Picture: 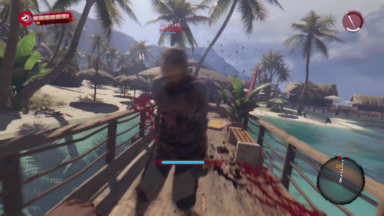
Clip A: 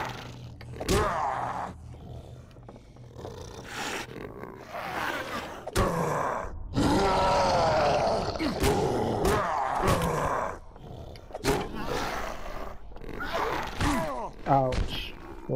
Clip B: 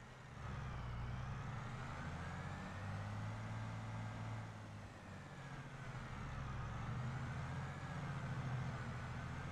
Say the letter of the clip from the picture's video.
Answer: A